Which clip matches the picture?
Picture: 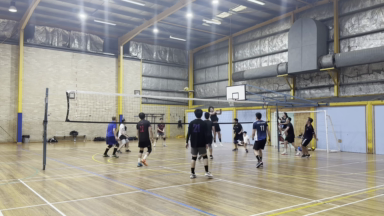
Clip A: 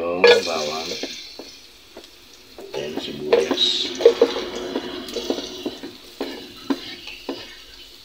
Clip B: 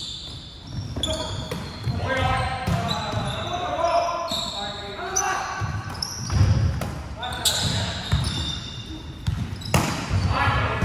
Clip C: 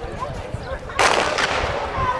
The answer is B